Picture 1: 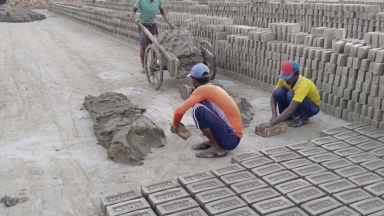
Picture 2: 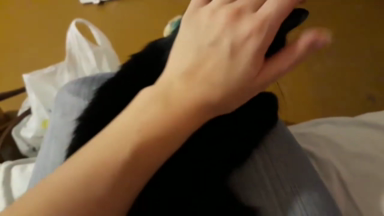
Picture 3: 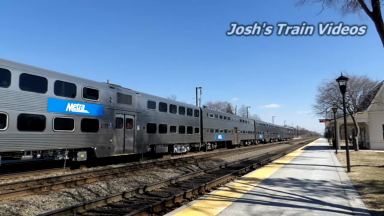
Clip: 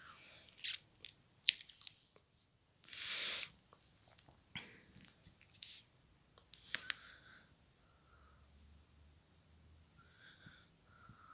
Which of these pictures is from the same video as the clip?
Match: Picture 2